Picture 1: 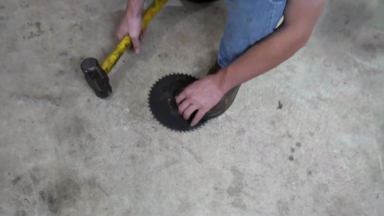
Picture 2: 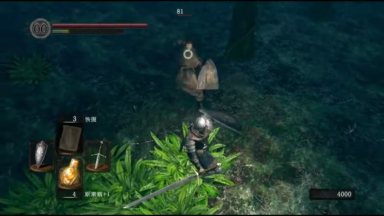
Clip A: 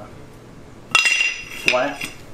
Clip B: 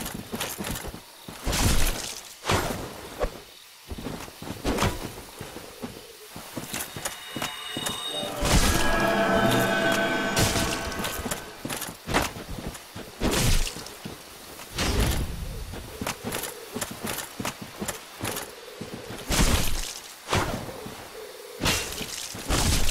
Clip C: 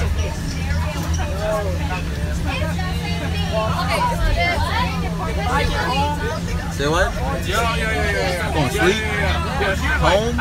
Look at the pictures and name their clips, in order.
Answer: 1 A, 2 B